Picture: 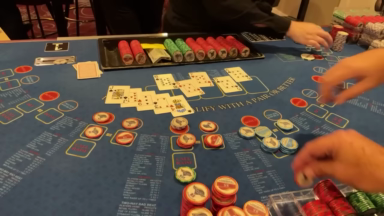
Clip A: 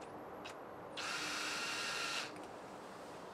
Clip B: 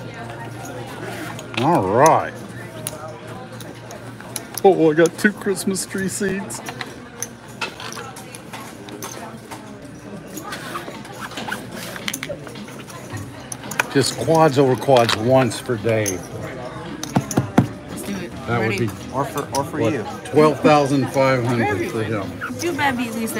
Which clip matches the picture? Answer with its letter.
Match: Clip B